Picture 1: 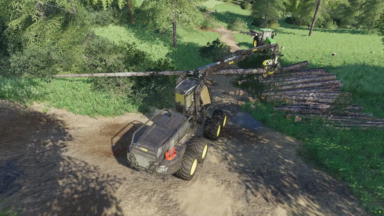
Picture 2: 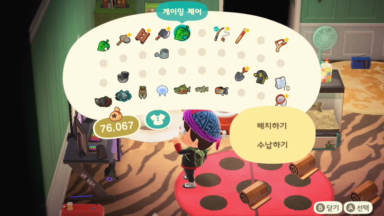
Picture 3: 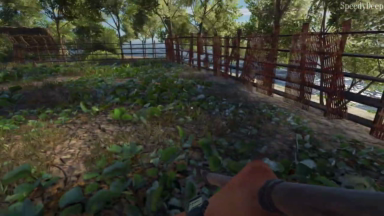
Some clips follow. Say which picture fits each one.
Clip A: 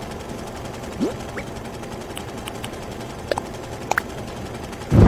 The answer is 2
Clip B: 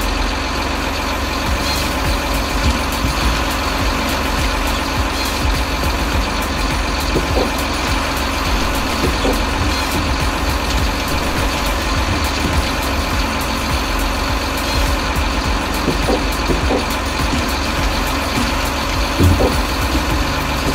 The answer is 1